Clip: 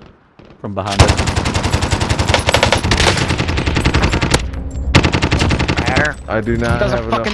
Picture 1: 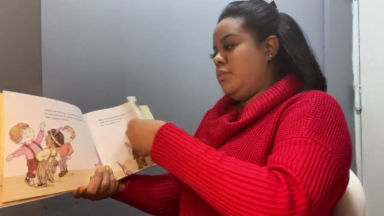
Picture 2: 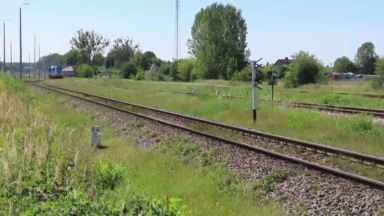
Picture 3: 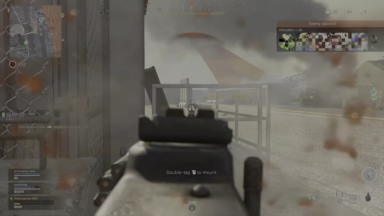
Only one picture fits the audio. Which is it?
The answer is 3